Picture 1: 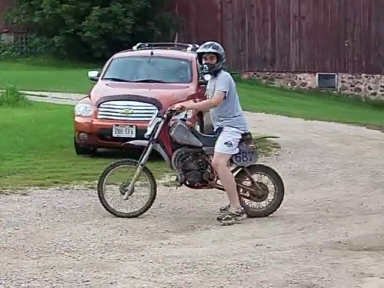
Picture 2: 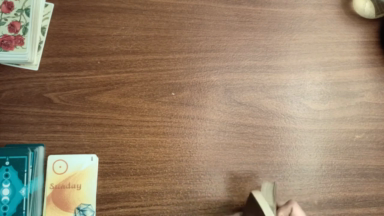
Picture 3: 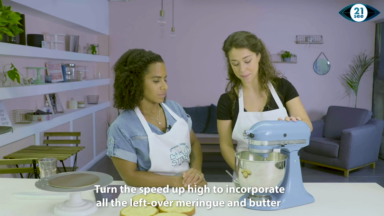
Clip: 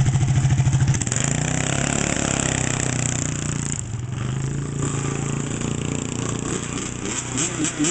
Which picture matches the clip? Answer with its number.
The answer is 1